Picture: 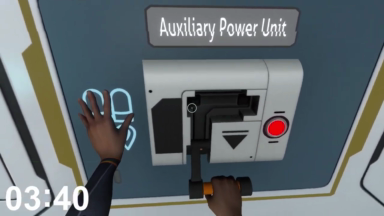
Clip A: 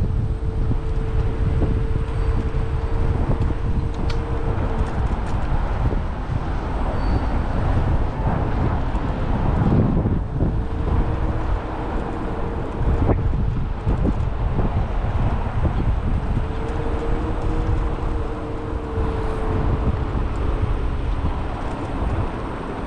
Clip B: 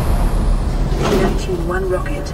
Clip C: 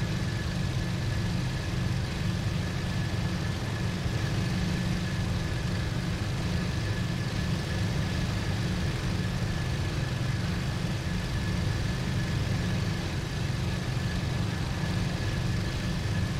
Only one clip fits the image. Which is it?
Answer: B